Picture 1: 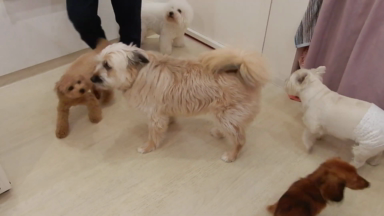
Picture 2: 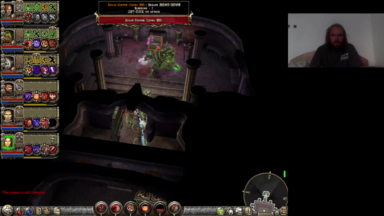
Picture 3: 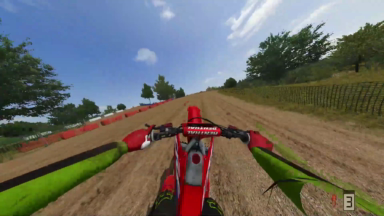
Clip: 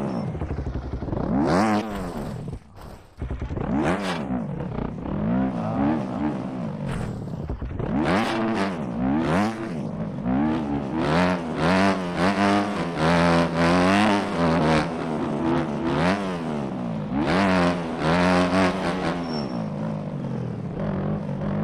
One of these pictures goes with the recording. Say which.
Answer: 3